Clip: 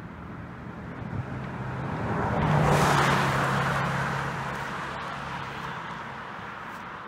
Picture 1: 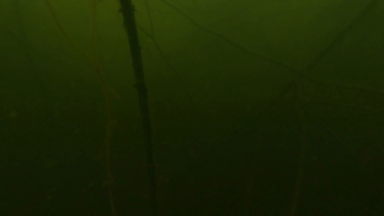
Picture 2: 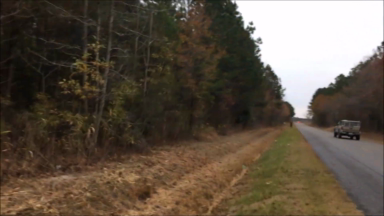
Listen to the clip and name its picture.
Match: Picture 2